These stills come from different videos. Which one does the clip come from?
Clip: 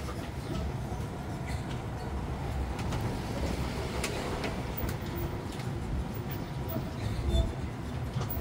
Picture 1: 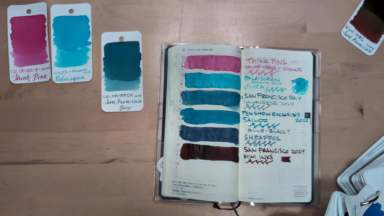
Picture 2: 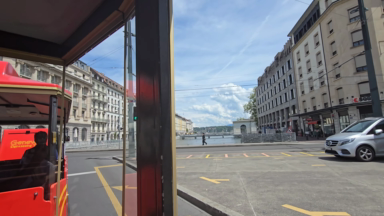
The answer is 2